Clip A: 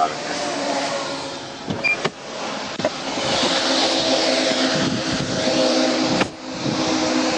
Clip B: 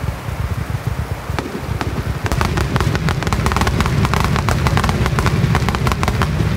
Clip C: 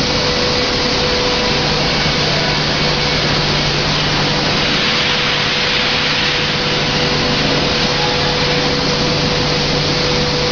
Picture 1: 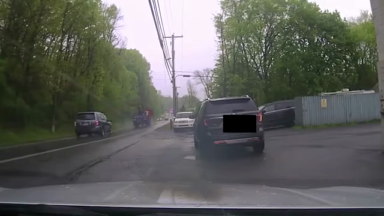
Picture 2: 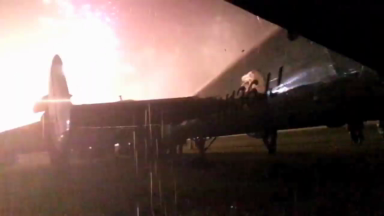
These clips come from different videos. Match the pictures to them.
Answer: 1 A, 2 B